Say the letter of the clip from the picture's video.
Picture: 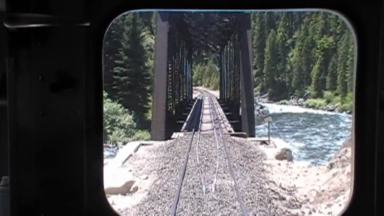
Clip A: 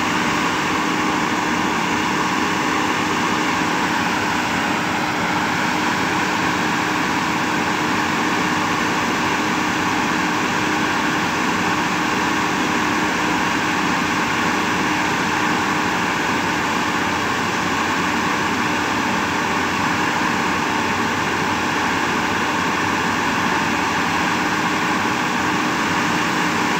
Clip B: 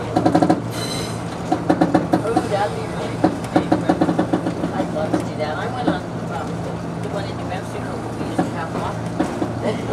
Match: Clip B